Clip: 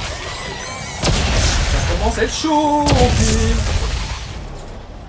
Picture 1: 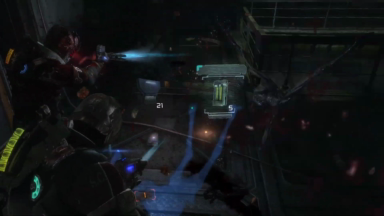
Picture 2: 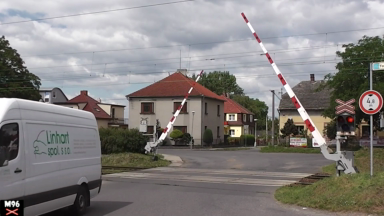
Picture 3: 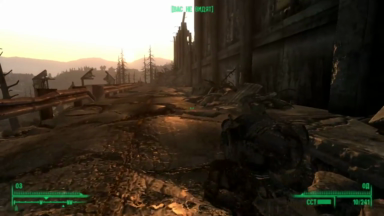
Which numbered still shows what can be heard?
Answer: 1